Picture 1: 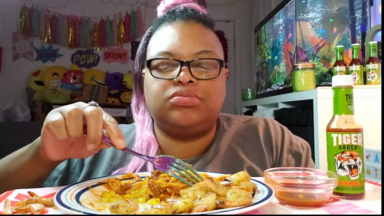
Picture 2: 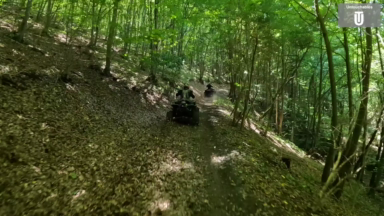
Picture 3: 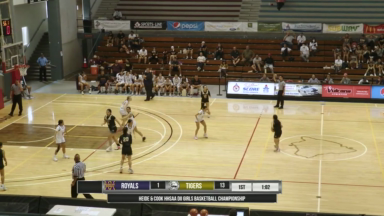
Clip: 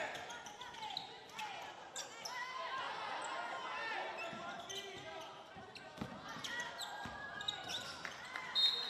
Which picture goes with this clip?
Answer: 3